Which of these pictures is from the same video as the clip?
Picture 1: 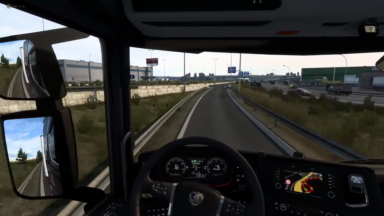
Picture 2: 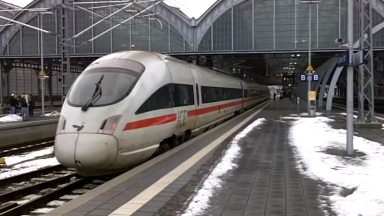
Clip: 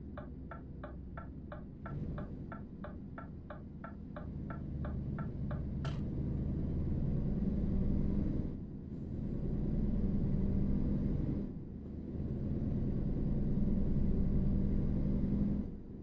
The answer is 1